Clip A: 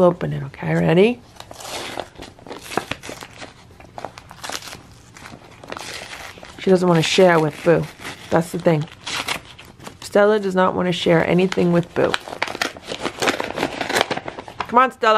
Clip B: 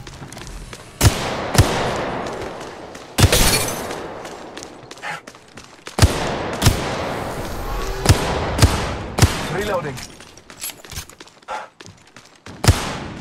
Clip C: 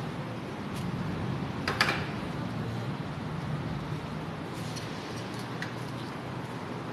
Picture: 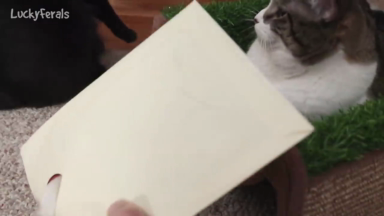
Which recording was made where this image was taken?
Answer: A